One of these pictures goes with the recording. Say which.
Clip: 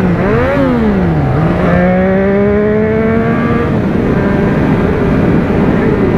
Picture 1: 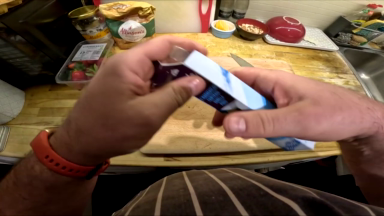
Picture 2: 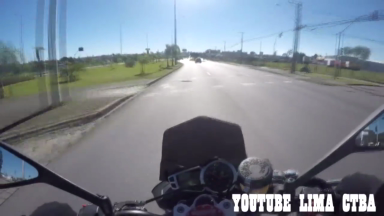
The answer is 2